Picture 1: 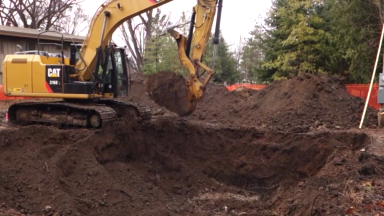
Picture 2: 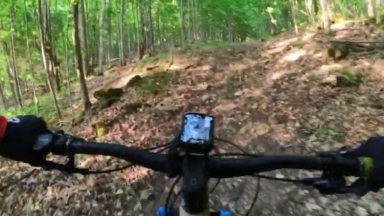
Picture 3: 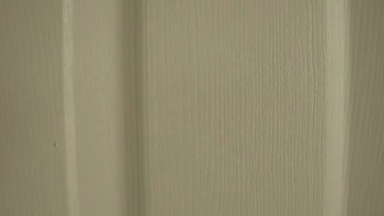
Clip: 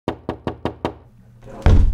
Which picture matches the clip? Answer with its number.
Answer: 3